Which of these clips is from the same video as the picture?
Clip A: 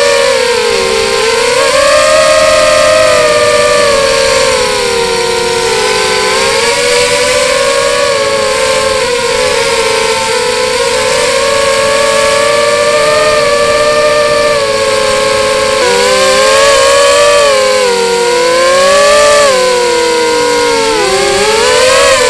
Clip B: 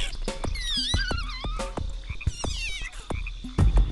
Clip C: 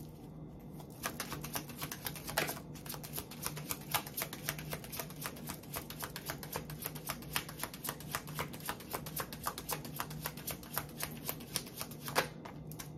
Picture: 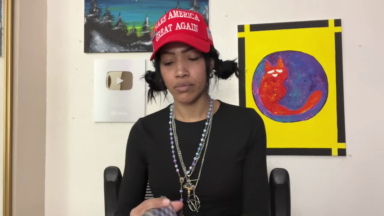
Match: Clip C